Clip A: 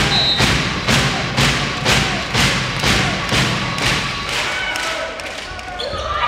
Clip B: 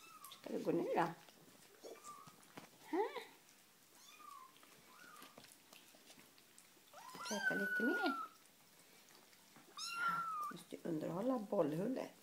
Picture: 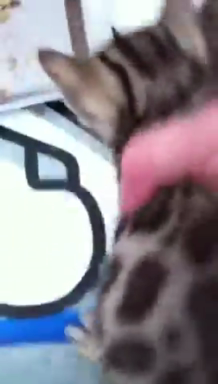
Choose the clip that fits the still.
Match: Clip B